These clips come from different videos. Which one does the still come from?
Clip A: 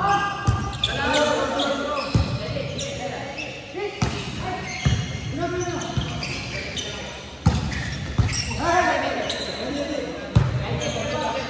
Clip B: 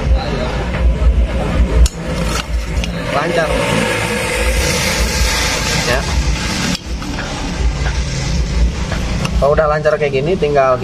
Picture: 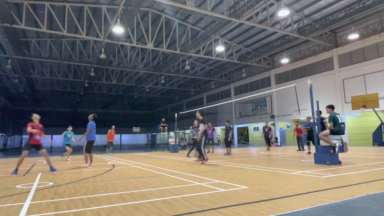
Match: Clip A